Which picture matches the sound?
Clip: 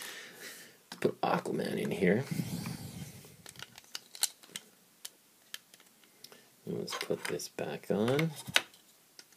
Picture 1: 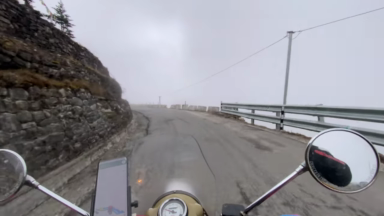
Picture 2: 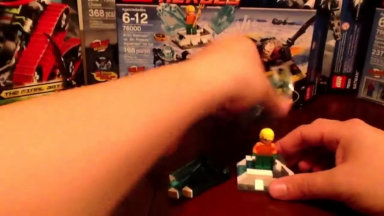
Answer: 2